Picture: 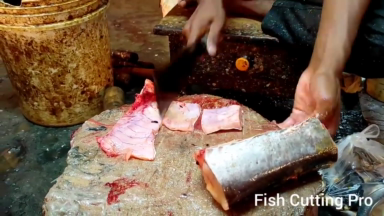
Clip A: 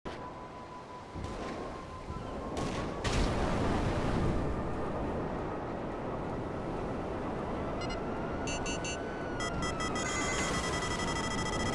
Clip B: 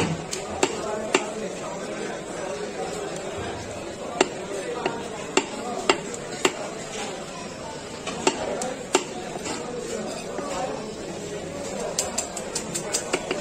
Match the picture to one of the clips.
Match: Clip B